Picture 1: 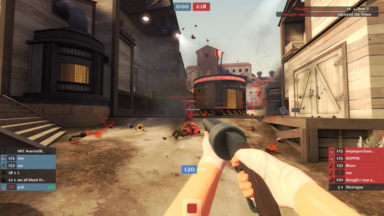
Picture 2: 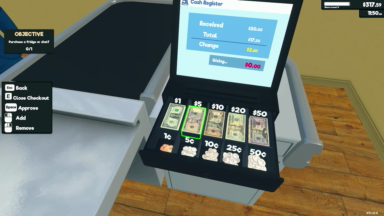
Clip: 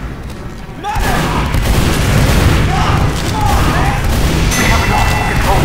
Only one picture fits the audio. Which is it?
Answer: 1